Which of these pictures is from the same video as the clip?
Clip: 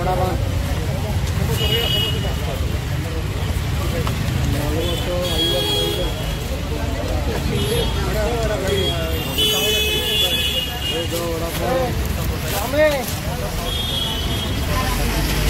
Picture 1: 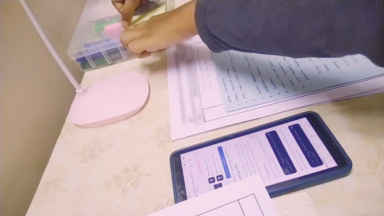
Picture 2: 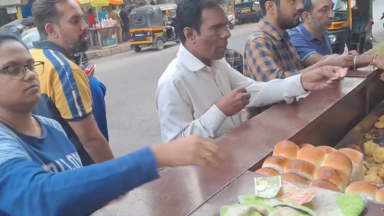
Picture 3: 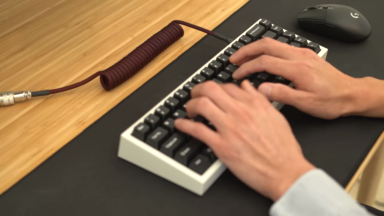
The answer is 2